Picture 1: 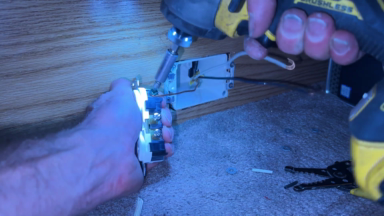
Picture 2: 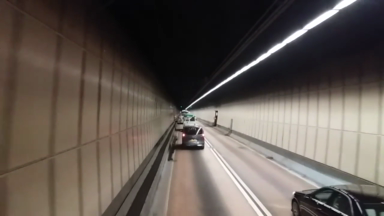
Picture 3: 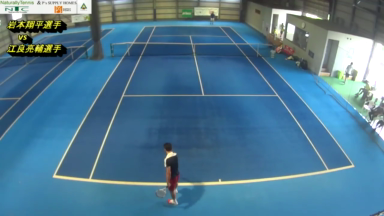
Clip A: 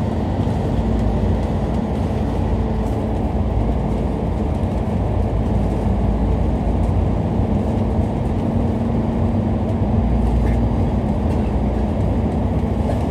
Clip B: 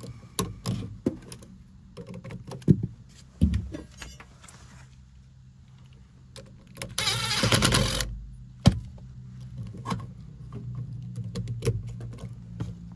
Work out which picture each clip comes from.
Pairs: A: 2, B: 1